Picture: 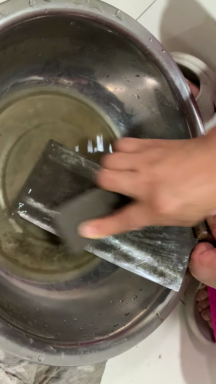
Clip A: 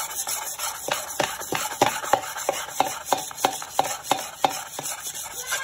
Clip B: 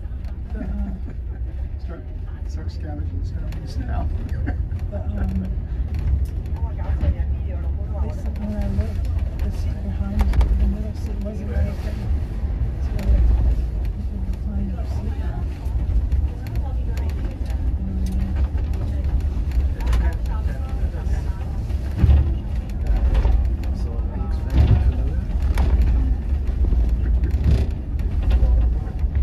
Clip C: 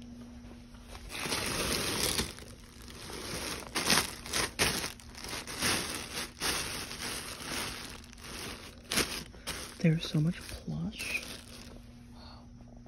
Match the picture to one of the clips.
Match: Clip A